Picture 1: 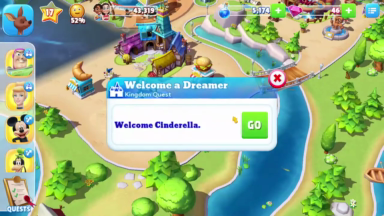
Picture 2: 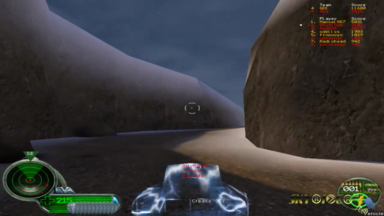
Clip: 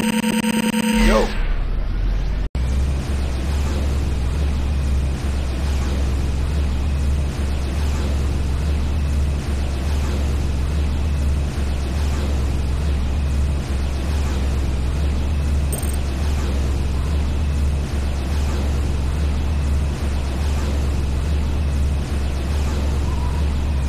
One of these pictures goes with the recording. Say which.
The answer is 2